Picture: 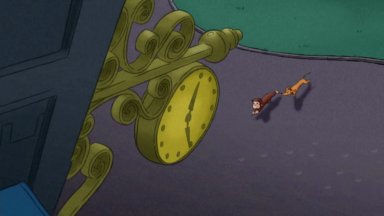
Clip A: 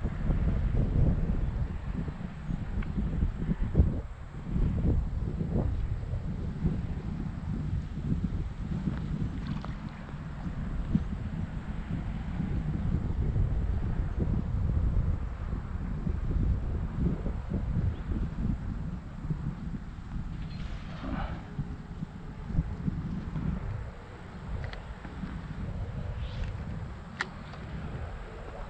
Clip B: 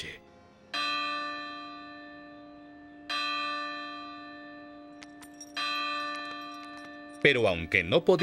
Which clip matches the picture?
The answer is B